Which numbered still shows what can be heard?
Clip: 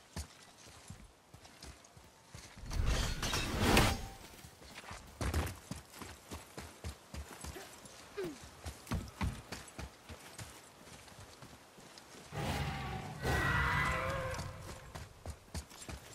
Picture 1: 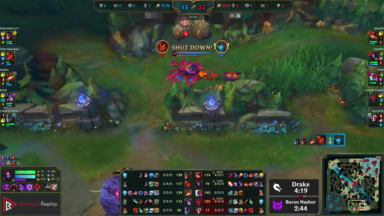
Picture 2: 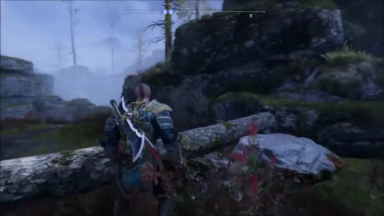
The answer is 2